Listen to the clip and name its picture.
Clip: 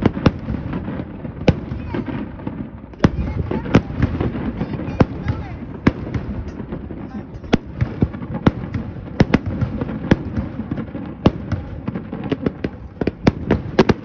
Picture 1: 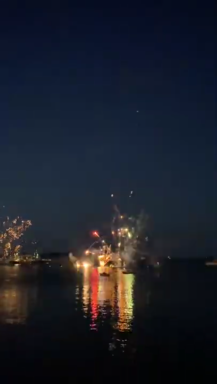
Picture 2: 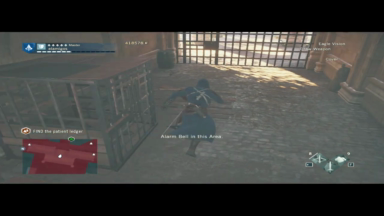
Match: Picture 1